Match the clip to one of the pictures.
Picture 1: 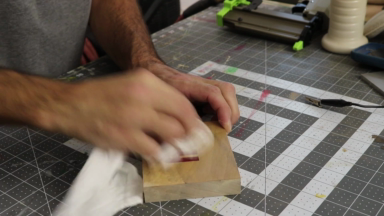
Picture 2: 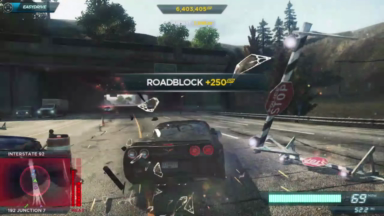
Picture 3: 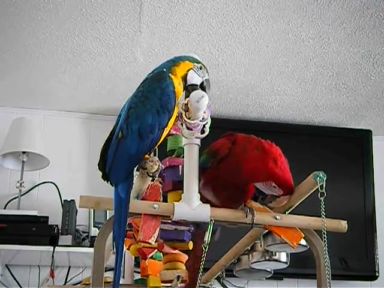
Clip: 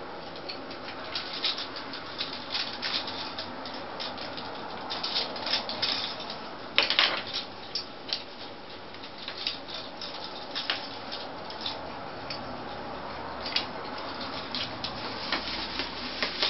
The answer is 3